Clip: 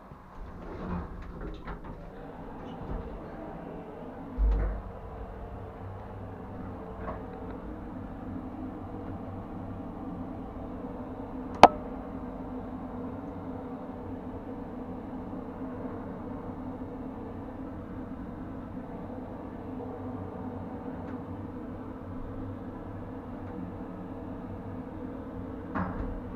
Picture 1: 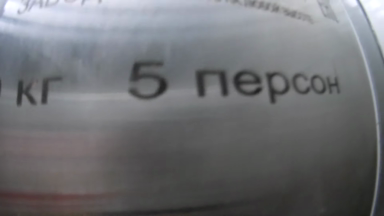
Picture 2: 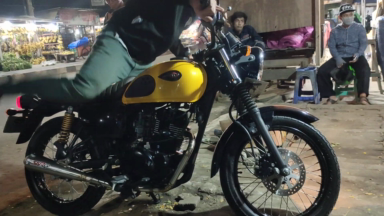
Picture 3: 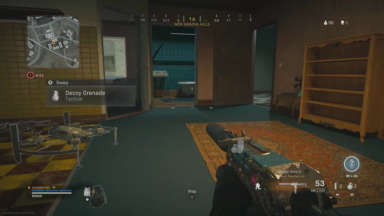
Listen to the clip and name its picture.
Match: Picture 1